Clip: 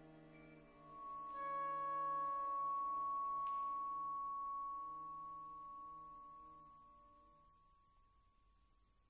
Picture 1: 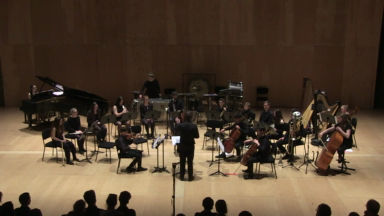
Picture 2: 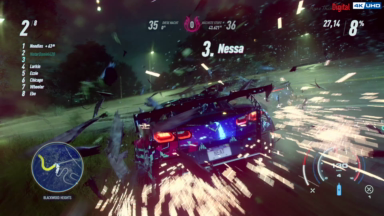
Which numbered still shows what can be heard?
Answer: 1